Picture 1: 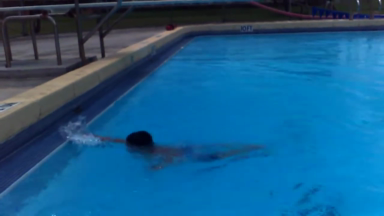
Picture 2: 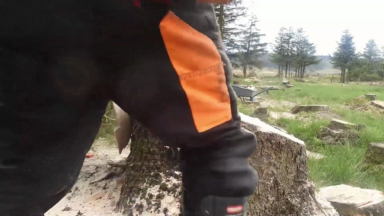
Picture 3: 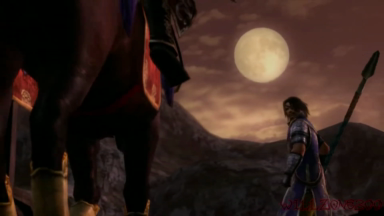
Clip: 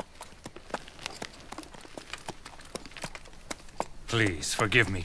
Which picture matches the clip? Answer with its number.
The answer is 3